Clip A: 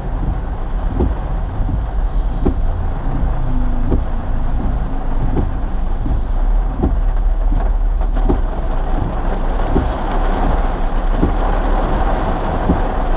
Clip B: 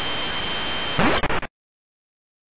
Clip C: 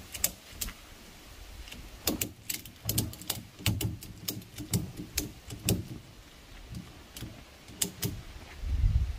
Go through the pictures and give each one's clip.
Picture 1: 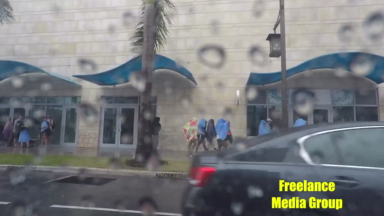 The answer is A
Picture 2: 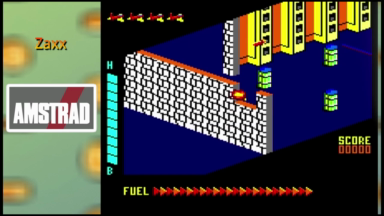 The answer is B